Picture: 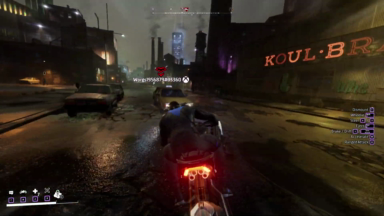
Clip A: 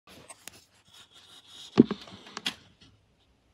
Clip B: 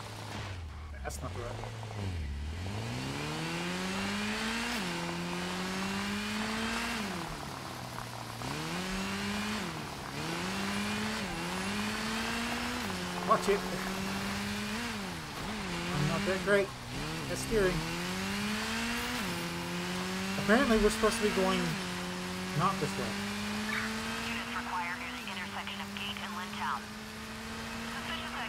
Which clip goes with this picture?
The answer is B